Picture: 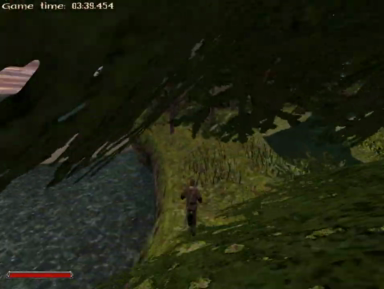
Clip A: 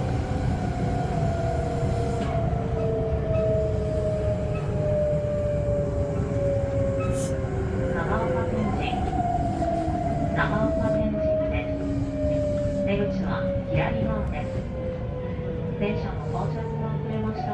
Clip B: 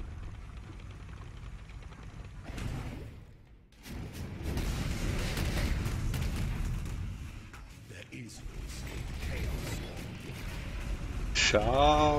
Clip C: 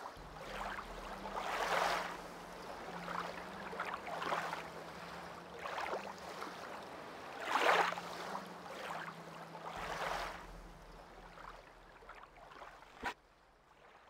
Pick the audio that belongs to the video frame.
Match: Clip C